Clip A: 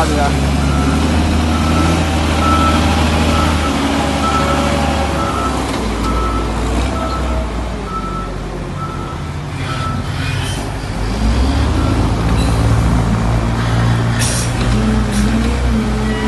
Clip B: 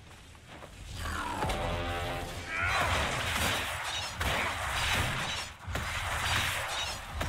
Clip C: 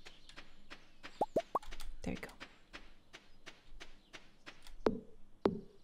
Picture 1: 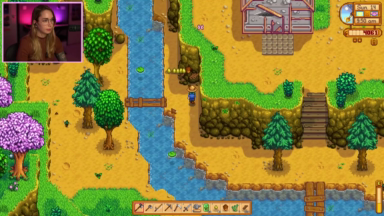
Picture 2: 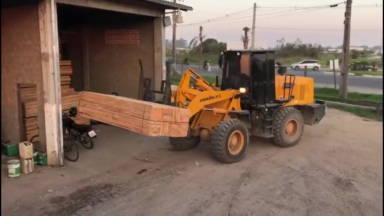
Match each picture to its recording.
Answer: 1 C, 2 A